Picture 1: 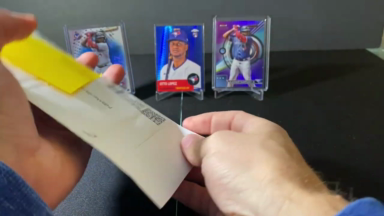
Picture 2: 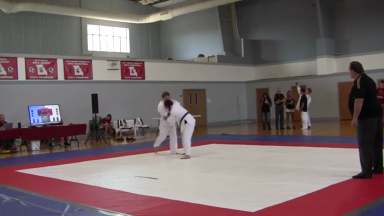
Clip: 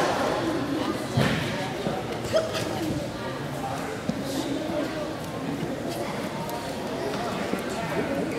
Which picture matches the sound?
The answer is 2